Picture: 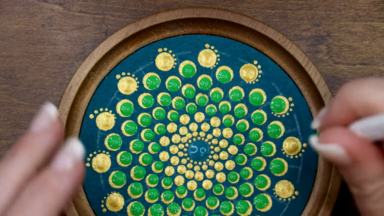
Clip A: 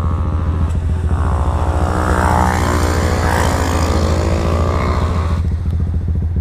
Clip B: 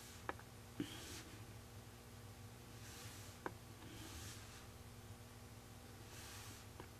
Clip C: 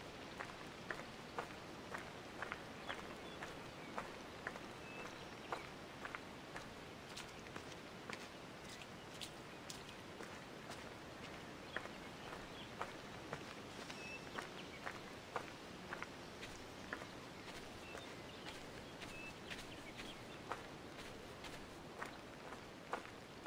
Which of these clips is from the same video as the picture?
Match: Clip B